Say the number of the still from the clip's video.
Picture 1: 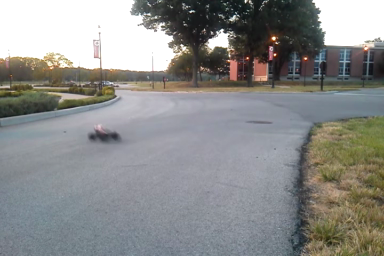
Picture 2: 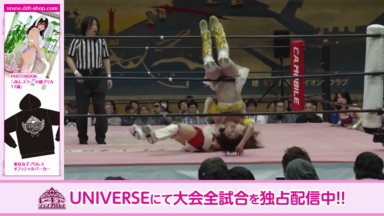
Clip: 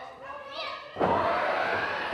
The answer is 2